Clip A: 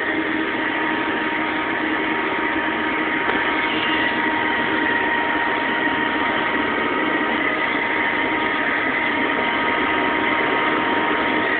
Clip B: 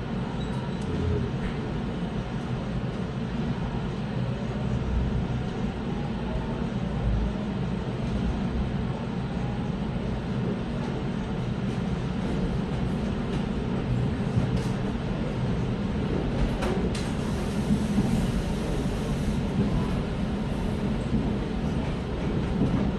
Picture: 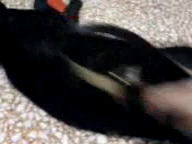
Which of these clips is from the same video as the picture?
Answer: A